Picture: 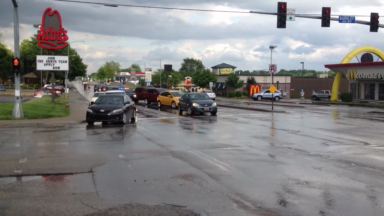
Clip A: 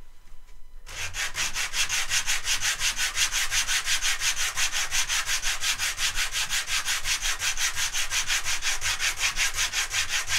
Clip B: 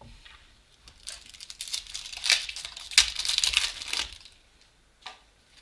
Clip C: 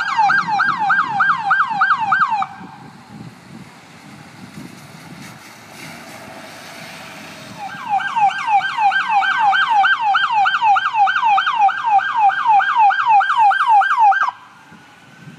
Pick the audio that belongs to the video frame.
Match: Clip C